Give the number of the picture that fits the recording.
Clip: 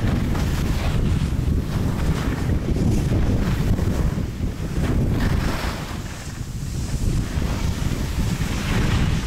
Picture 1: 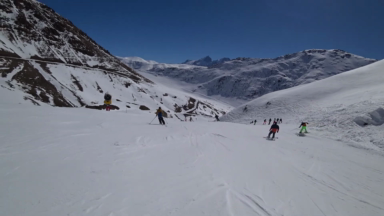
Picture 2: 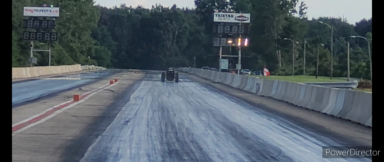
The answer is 1